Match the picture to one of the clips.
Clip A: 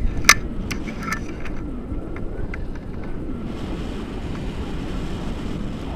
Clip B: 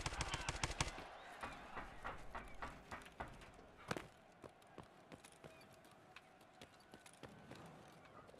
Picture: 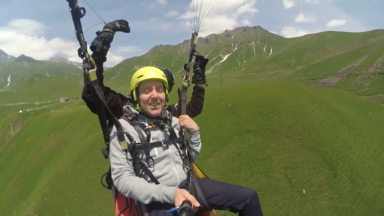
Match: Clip A